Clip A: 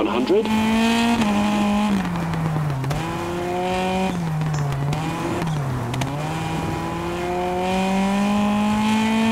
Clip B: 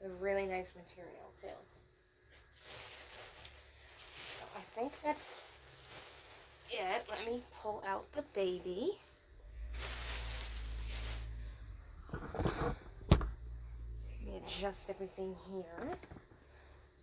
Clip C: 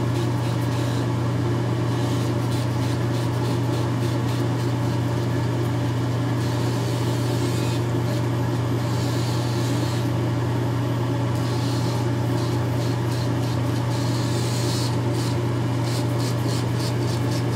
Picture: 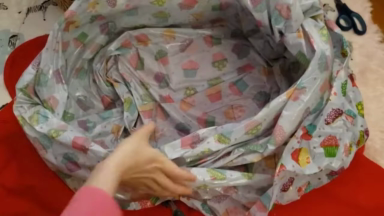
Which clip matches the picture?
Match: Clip B